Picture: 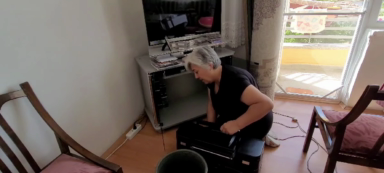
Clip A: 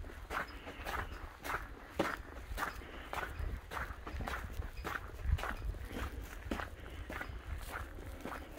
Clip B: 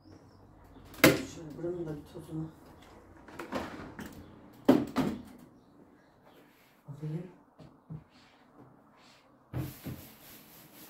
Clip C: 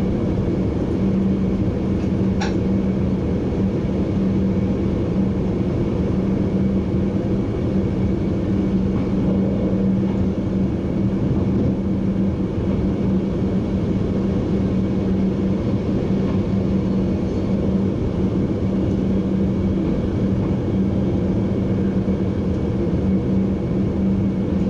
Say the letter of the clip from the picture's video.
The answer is B